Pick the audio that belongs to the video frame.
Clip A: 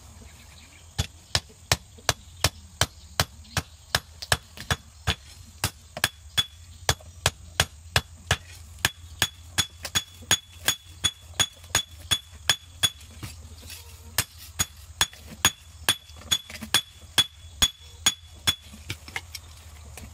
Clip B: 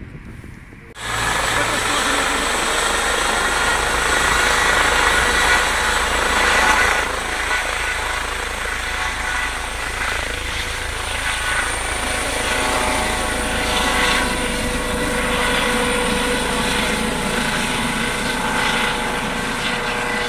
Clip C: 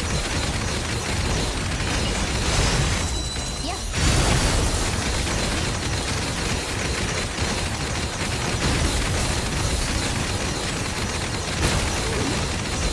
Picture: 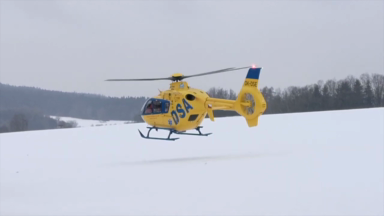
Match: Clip B